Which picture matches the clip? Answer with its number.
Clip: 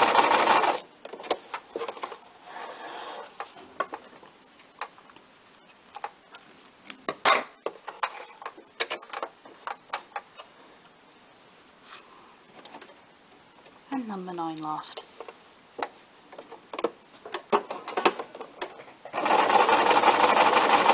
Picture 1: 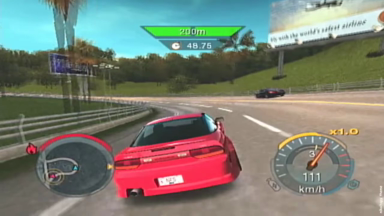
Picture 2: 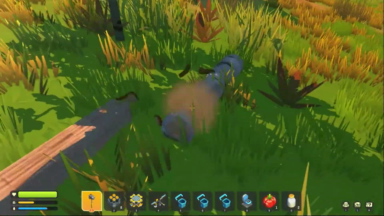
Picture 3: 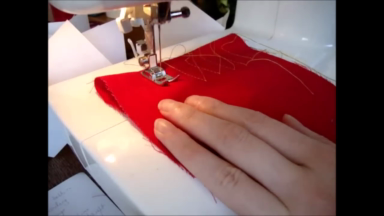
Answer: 3